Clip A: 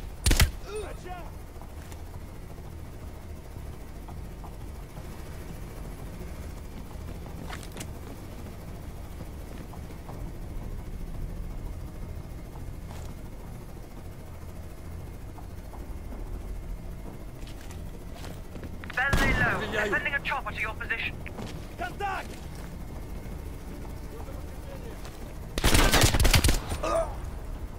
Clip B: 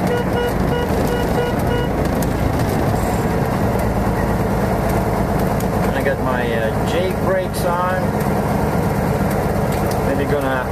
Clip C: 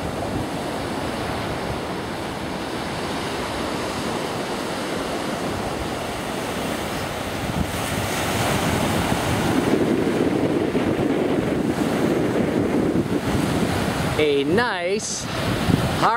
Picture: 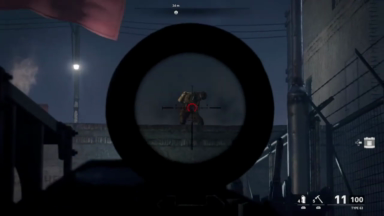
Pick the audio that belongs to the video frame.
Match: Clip A